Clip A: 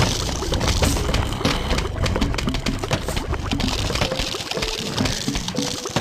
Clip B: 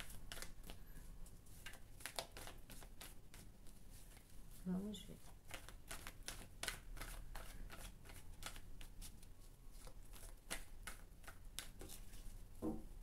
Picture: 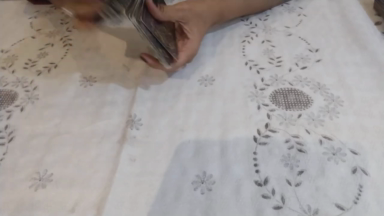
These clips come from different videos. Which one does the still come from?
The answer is B